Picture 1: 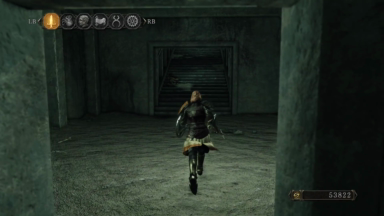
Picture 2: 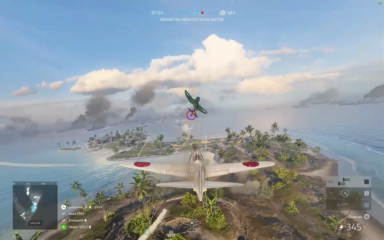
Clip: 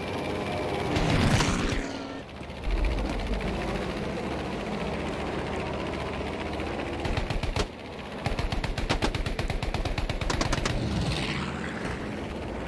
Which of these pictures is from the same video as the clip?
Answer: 2